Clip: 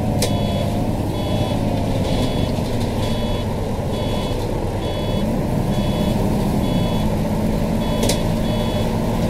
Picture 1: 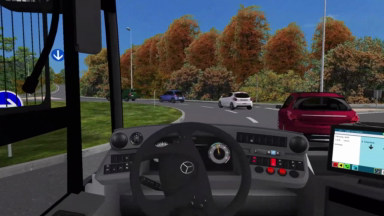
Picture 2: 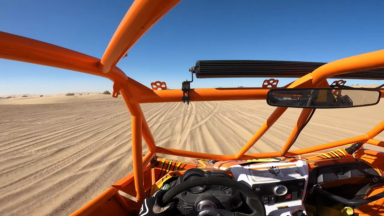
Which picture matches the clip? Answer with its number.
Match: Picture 1